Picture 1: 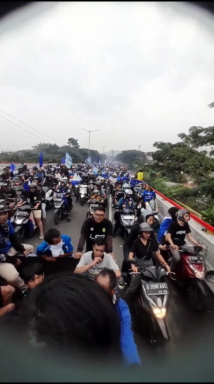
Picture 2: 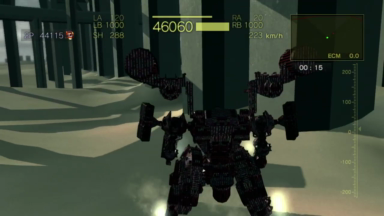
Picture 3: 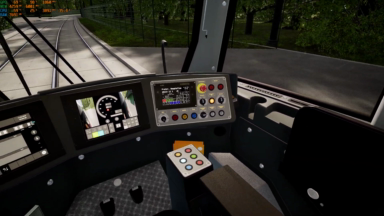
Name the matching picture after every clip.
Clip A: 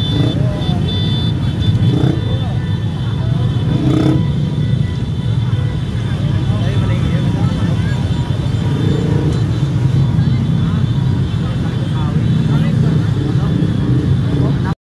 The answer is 1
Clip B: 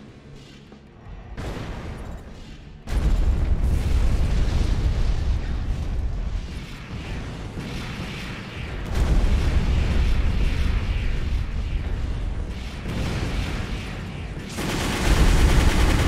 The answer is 2